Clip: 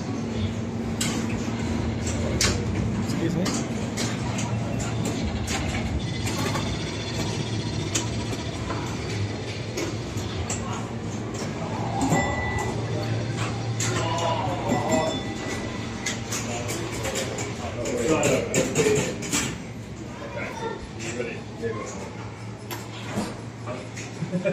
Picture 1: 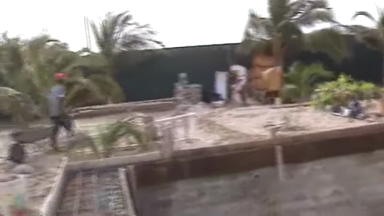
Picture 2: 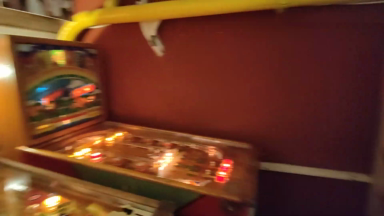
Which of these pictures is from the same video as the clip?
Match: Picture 2